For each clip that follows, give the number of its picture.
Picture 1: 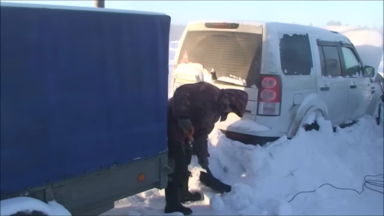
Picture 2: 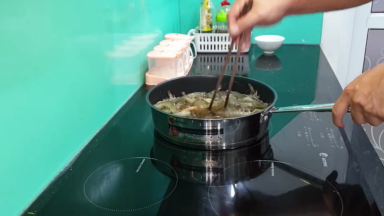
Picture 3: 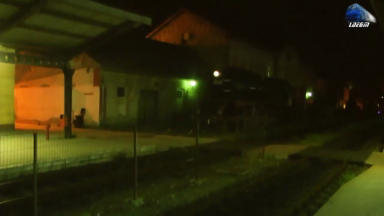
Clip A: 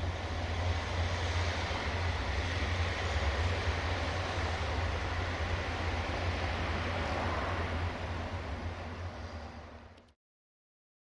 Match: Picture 3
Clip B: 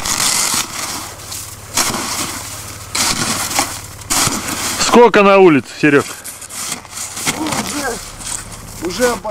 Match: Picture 1